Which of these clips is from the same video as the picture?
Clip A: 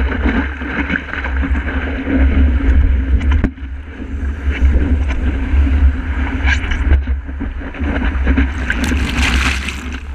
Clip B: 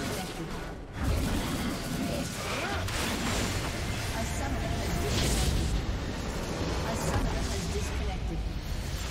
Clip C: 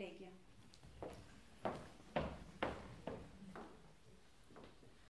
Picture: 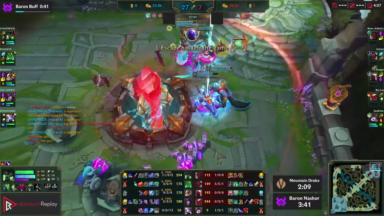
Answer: B